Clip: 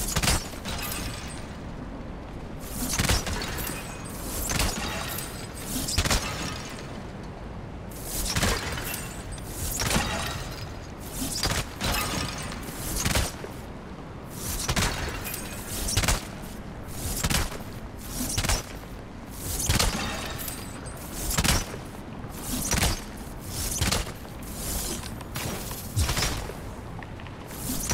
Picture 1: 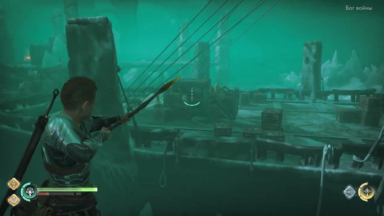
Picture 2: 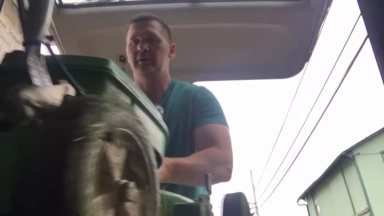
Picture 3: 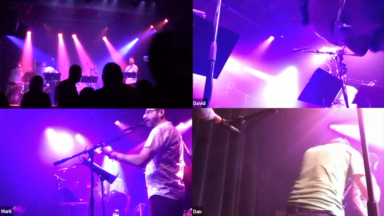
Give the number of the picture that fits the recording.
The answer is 1